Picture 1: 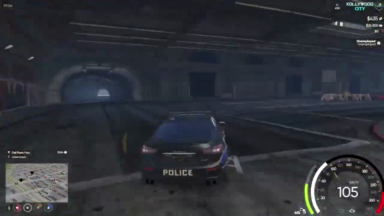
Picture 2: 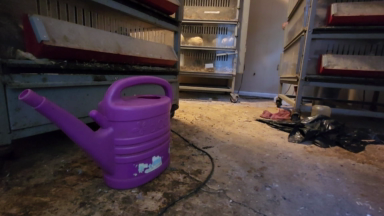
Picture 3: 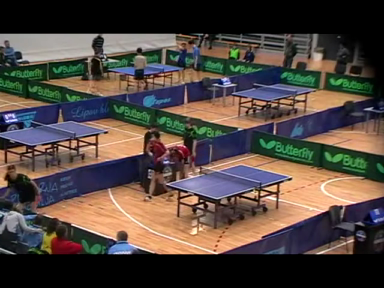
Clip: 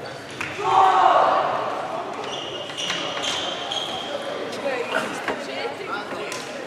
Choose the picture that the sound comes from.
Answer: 3